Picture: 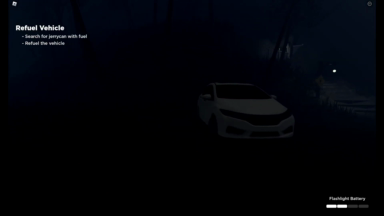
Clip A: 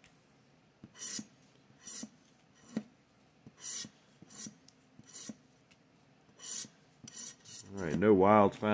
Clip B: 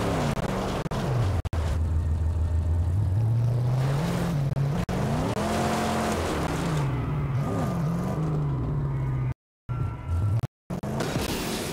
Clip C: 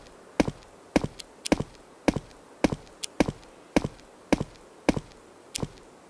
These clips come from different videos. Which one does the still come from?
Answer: C